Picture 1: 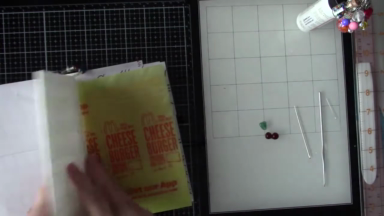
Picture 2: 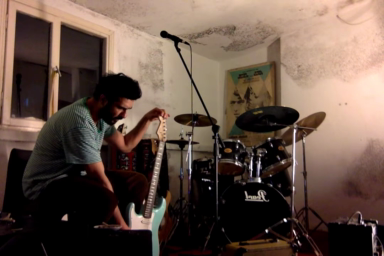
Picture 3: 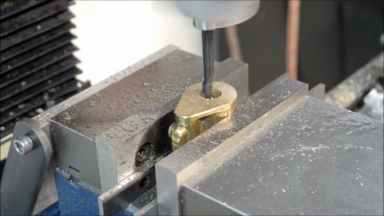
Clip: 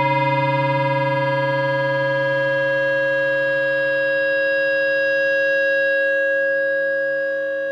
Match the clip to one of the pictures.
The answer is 2